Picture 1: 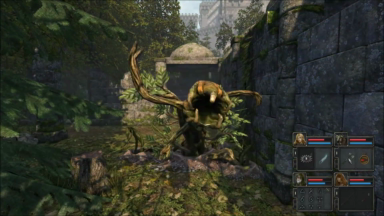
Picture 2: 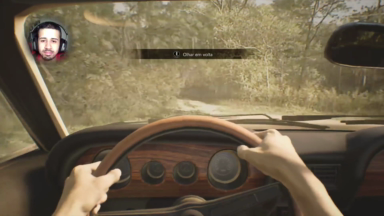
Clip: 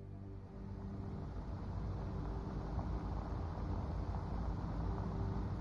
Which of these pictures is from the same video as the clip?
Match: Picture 2